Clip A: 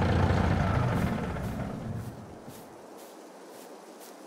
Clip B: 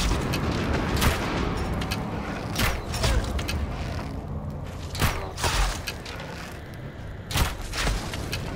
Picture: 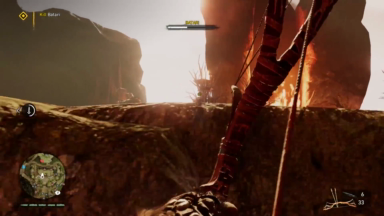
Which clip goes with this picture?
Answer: B